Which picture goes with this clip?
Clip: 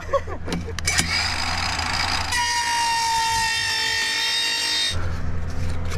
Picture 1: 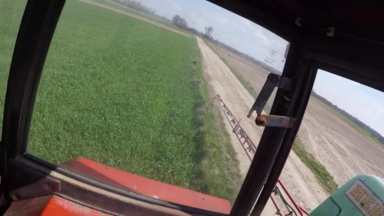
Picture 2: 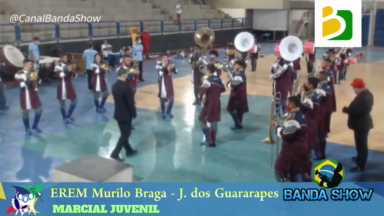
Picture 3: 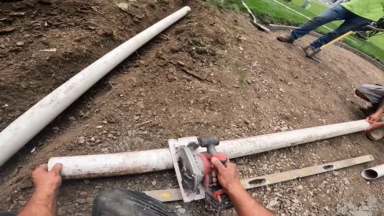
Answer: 3